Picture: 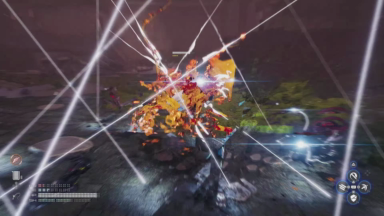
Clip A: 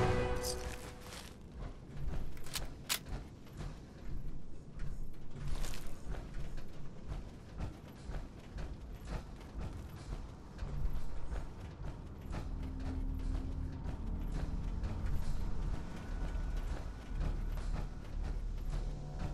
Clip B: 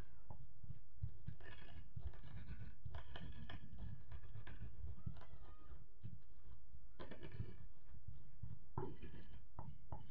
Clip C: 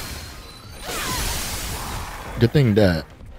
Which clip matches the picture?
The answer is C